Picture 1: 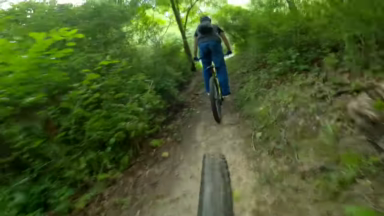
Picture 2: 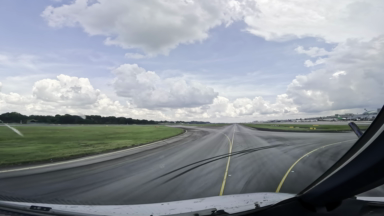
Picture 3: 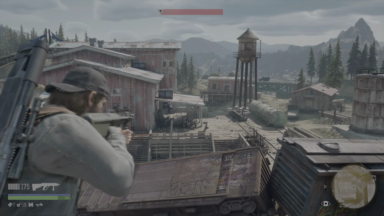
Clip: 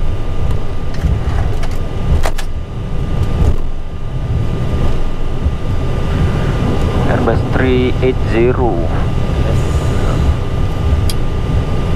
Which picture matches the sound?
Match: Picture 2